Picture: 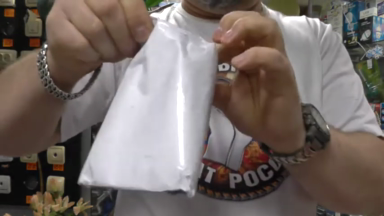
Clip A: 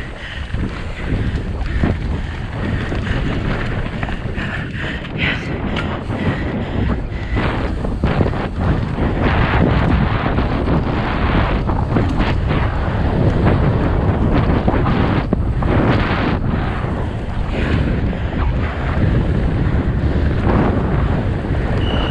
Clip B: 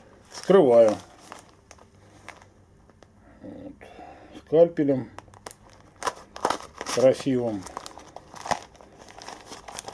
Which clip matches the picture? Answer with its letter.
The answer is B